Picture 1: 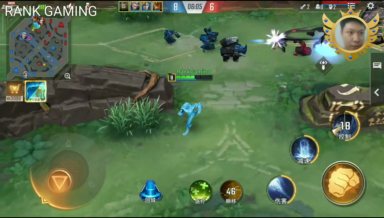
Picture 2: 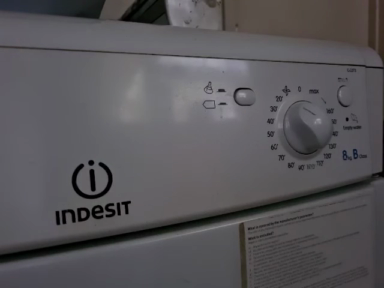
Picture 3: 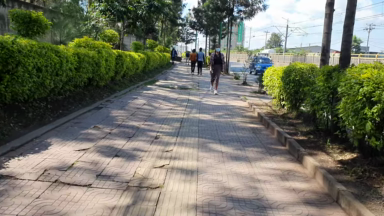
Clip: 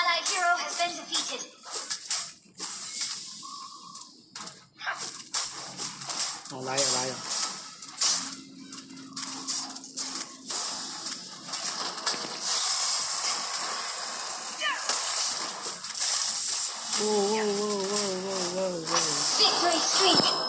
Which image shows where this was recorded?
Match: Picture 1